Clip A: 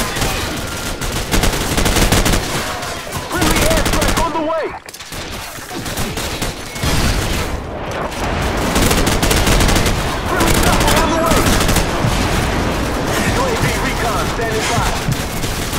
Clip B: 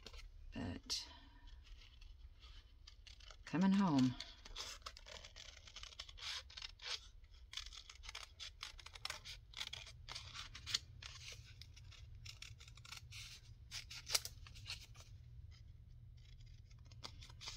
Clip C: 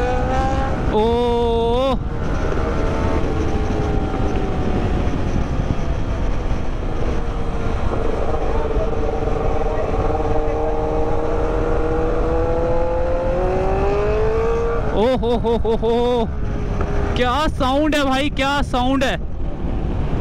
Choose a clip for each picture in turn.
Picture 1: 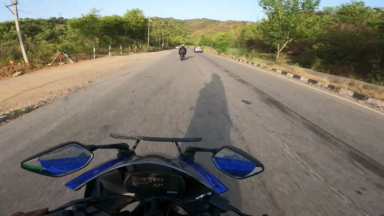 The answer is C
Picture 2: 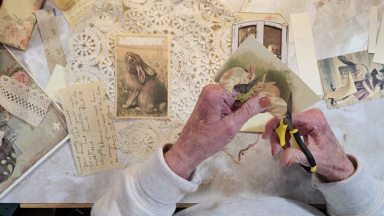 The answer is B